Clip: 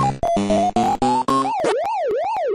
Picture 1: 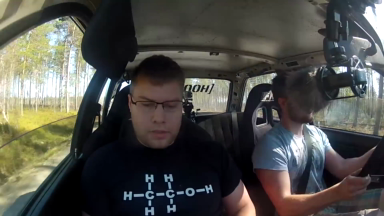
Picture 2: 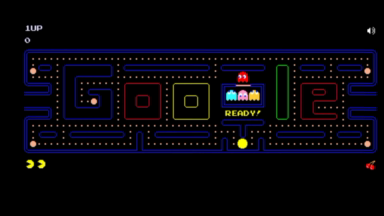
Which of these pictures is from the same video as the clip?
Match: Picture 2